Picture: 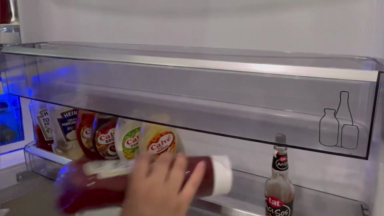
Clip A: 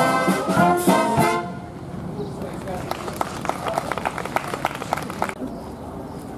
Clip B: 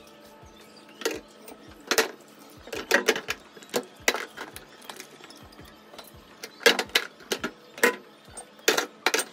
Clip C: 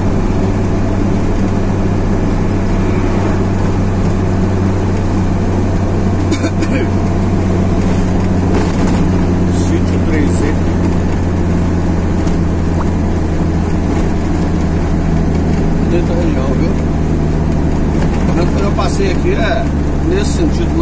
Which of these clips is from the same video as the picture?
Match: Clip B